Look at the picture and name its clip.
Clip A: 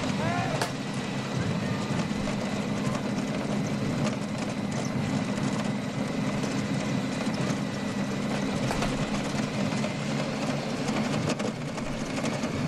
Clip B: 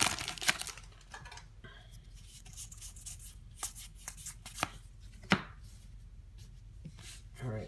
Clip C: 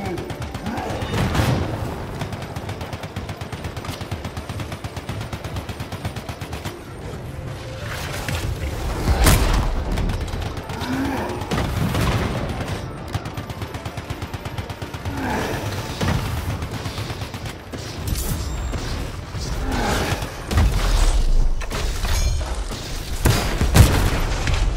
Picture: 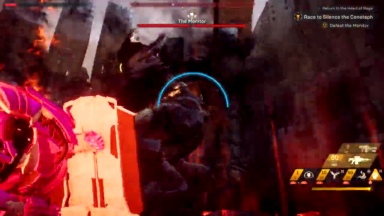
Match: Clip C